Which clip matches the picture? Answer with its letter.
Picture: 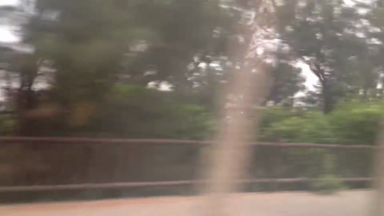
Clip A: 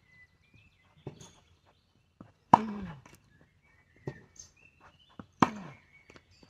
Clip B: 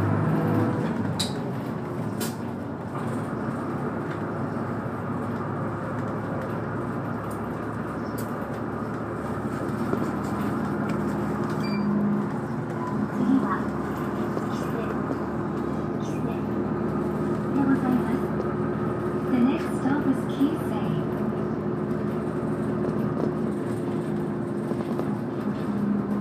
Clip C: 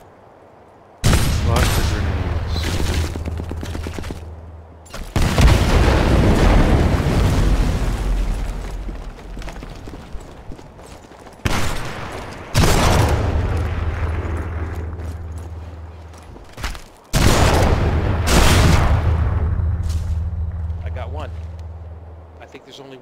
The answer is B